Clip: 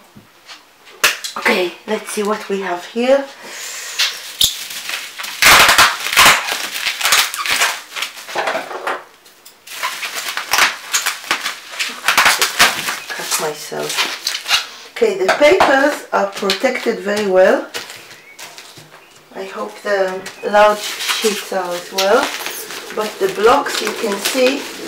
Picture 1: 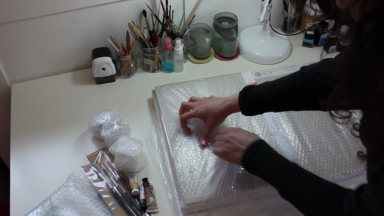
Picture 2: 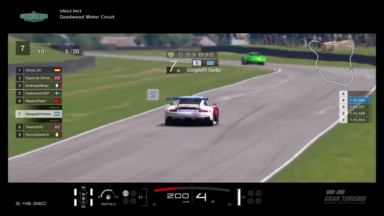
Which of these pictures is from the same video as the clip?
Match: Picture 1